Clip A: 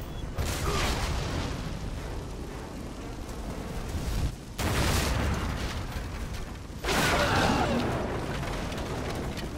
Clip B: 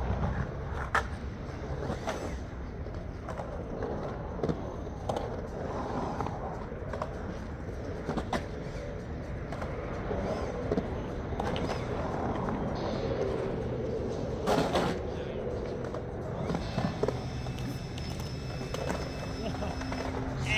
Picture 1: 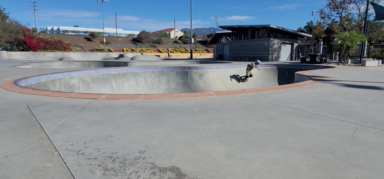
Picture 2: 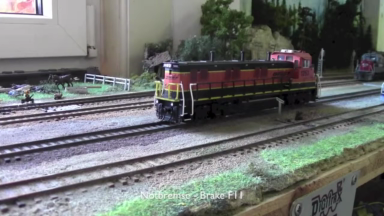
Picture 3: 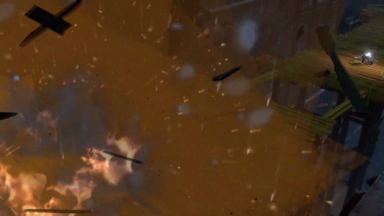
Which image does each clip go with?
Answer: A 3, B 1